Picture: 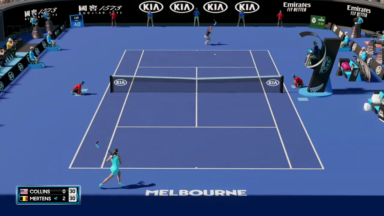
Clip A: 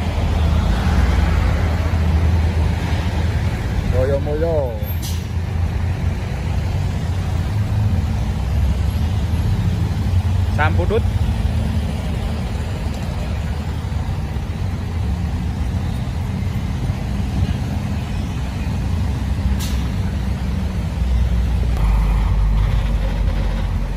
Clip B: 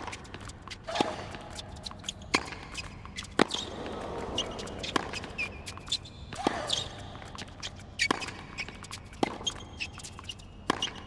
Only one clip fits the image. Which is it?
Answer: B